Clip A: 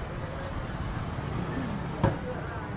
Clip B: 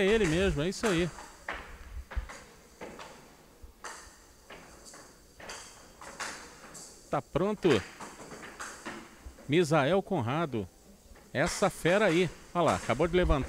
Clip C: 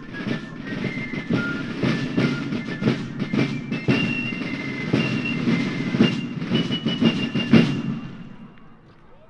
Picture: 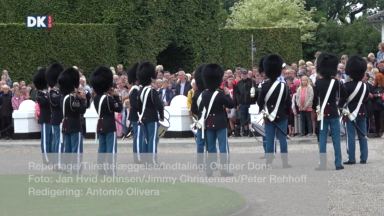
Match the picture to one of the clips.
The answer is C